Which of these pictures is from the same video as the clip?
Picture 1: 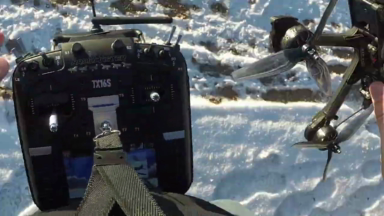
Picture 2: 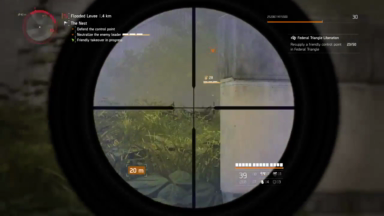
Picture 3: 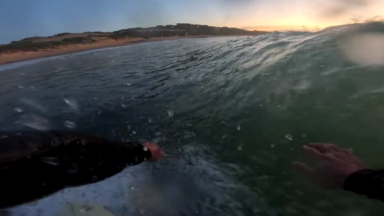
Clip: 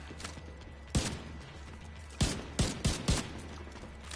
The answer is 2